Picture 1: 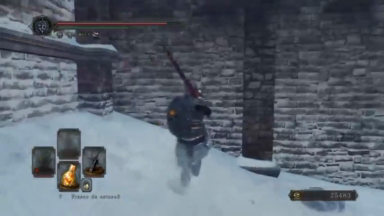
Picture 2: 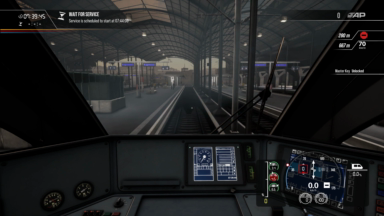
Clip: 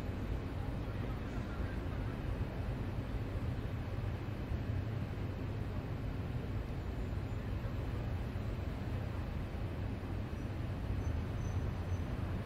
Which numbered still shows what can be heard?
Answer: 2